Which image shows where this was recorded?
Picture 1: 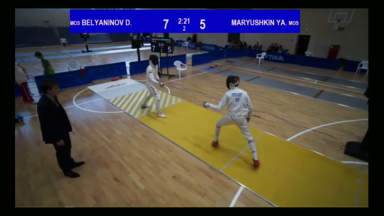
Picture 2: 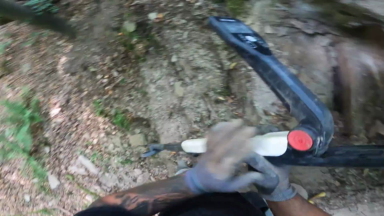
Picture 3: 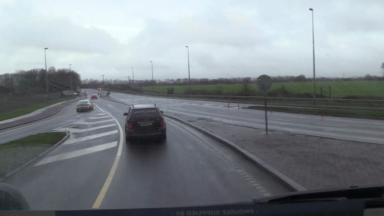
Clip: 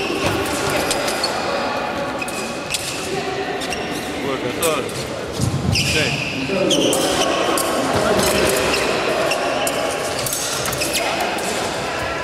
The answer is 1